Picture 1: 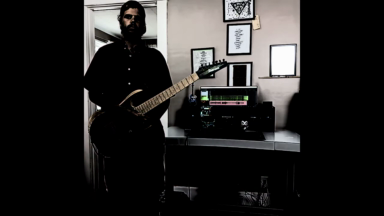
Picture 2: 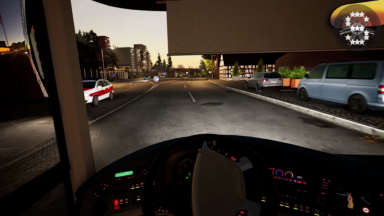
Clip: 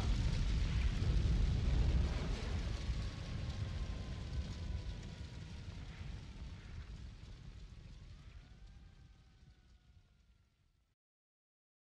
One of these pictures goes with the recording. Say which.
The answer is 1